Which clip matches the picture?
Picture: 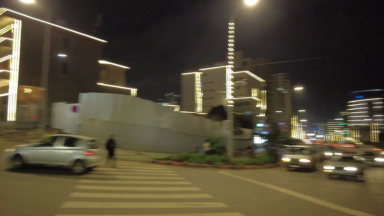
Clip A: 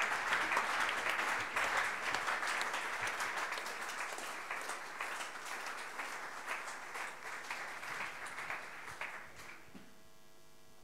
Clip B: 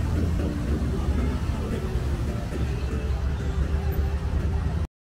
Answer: B